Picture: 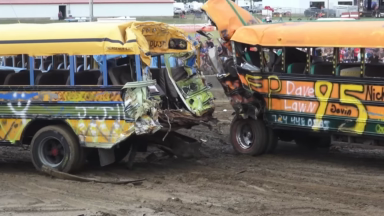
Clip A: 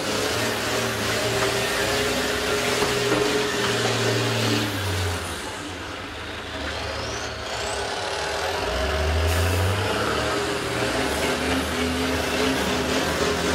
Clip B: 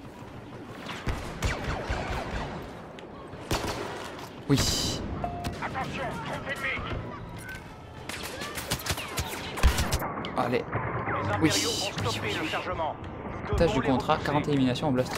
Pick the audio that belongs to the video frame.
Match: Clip A